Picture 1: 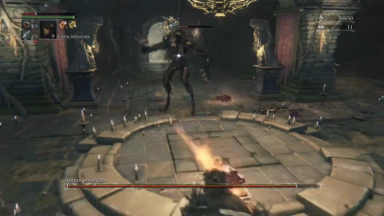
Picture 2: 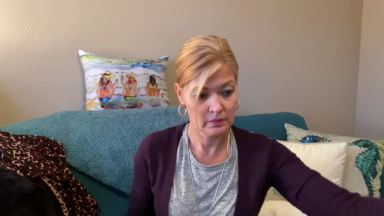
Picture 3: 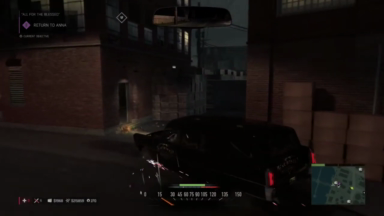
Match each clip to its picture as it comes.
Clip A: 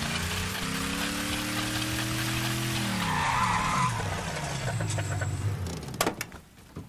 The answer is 3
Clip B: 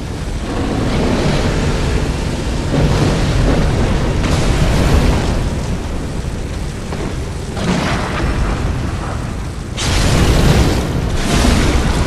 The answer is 1